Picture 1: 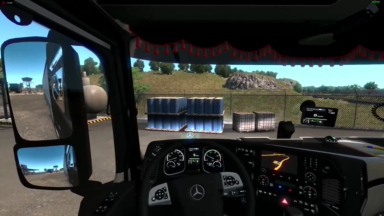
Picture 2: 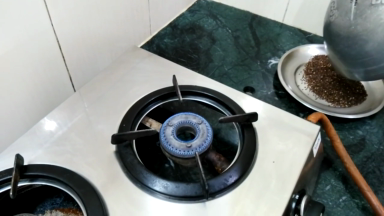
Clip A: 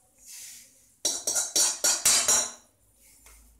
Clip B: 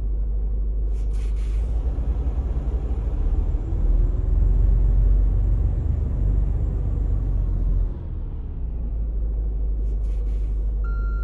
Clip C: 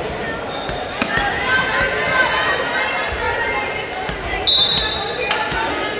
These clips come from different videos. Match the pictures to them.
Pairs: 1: B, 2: A